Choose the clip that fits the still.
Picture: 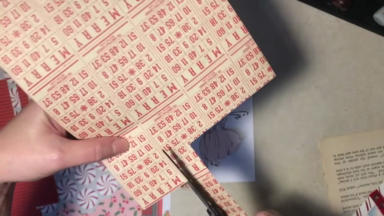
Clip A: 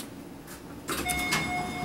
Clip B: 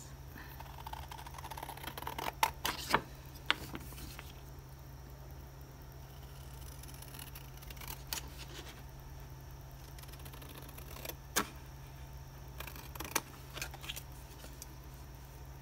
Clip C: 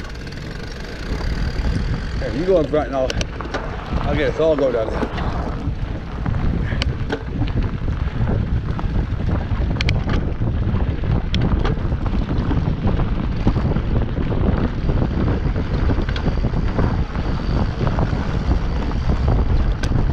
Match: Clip B